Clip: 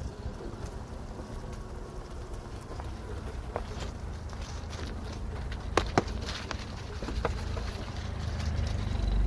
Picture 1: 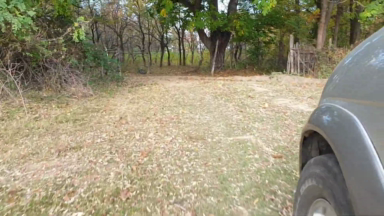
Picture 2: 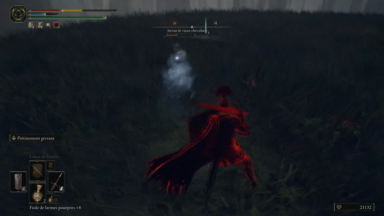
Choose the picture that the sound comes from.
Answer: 1